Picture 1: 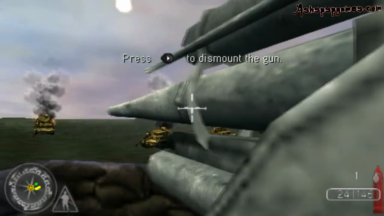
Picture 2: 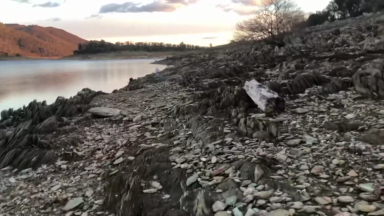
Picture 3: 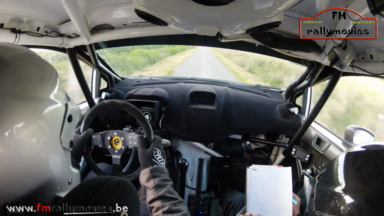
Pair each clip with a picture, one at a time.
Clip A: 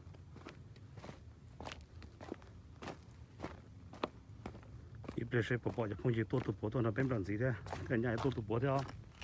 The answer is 2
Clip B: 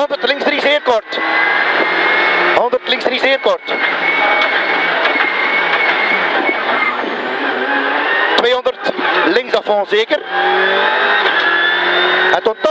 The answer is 3